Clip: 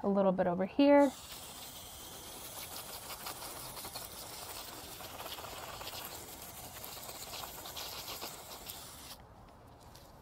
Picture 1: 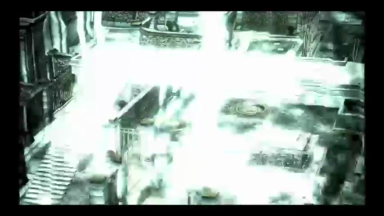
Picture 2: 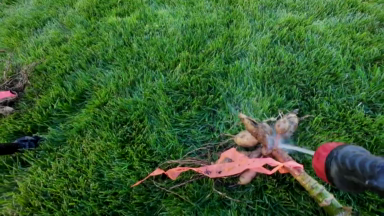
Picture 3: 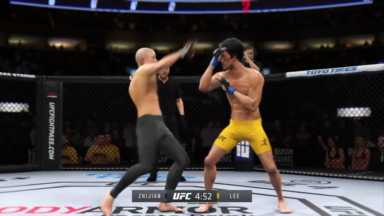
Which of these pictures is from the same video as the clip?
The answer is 2